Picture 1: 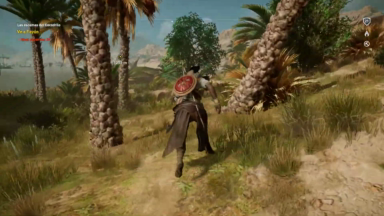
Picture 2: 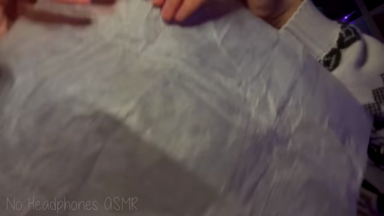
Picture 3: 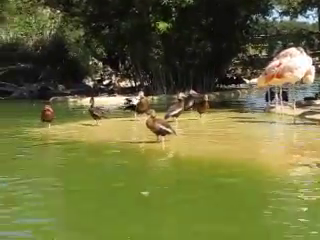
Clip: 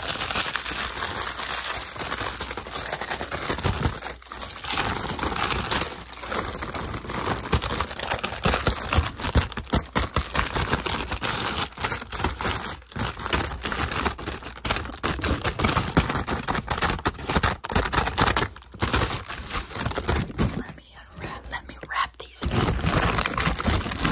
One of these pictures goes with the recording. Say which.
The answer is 2